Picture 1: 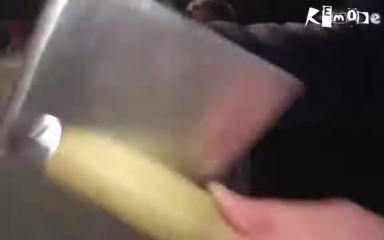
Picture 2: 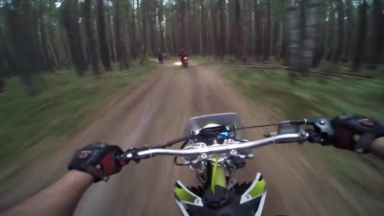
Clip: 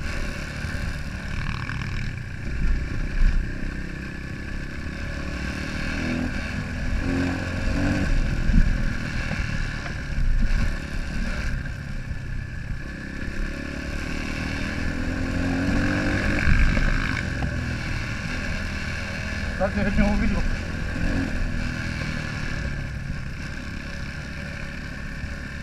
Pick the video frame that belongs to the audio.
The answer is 2